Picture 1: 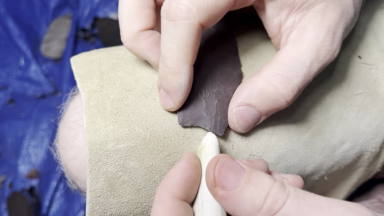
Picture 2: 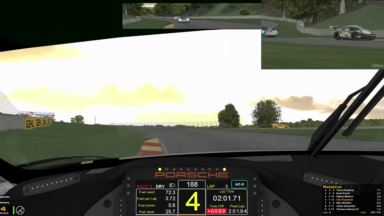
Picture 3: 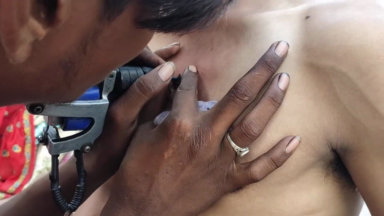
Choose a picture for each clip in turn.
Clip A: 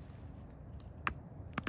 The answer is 1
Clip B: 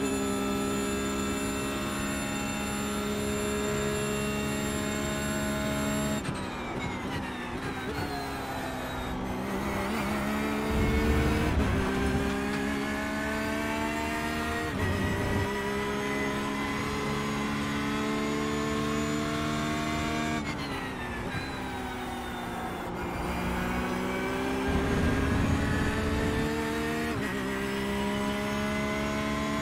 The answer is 2